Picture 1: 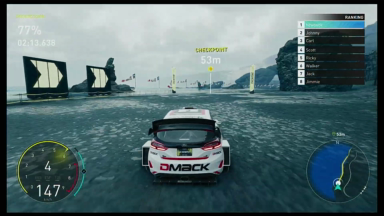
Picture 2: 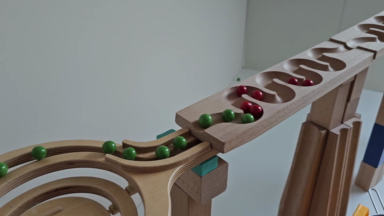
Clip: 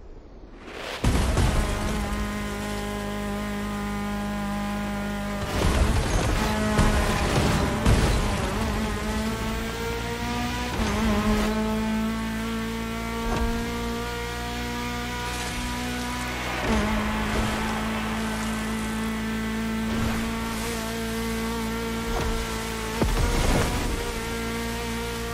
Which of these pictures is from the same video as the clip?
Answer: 1